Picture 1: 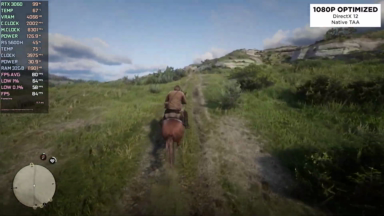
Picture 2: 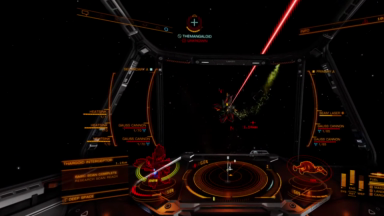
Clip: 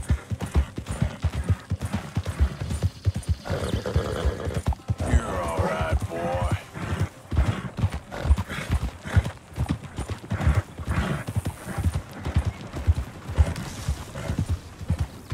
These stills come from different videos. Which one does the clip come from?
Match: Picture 1